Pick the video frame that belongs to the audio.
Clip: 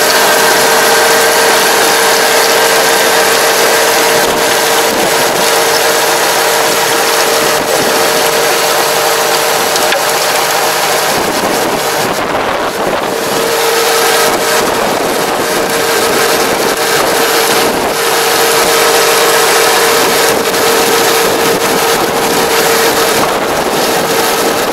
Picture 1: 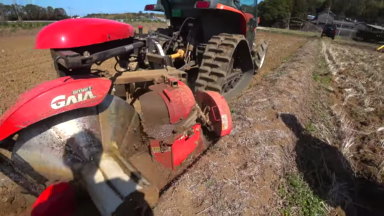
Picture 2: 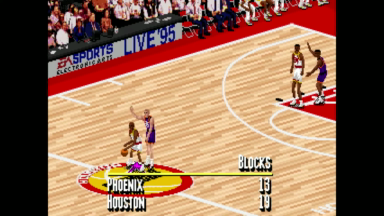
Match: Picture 1